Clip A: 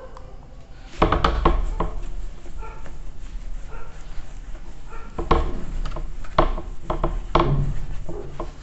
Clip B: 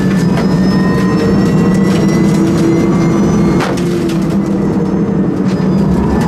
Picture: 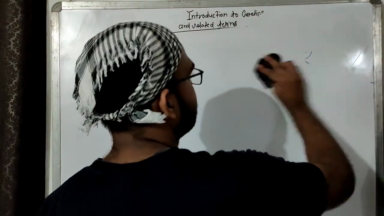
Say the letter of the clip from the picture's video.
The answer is A